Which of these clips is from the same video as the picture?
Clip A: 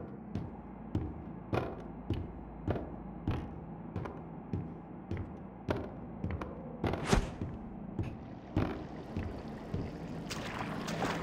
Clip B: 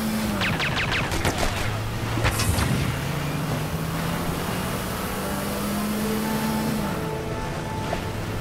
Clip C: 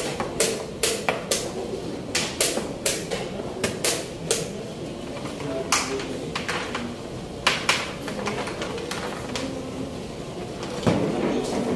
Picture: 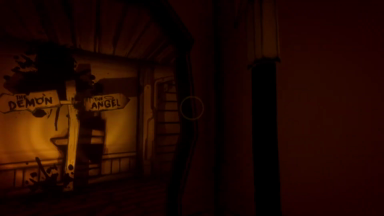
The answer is A